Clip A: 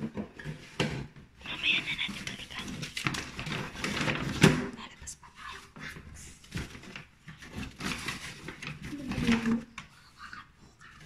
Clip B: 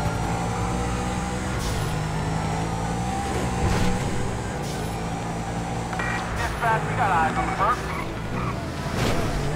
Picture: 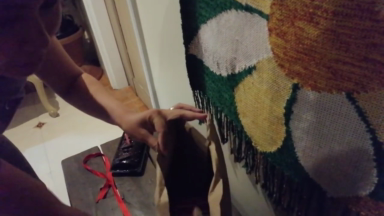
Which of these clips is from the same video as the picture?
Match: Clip A